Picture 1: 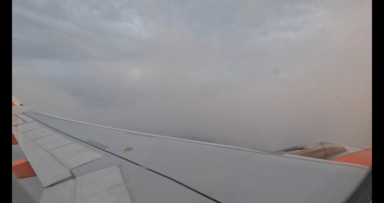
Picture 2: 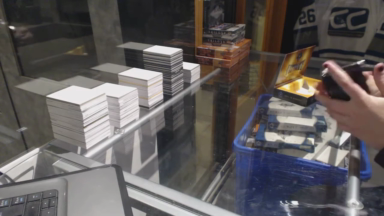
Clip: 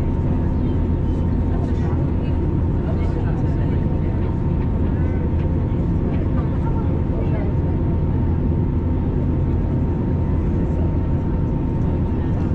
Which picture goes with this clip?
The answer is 1